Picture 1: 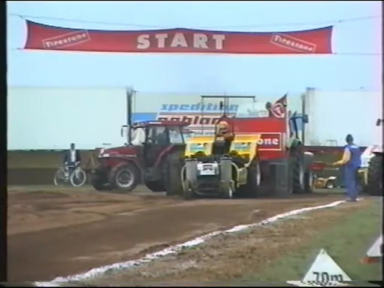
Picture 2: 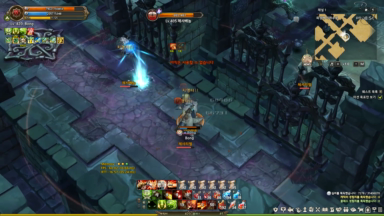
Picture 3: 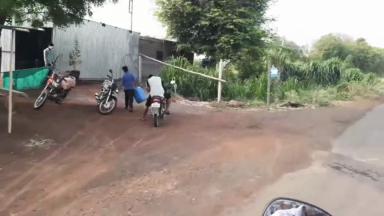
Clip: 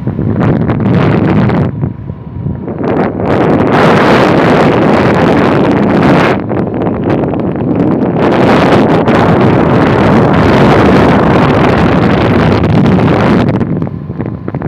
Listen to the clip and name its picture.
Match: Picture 3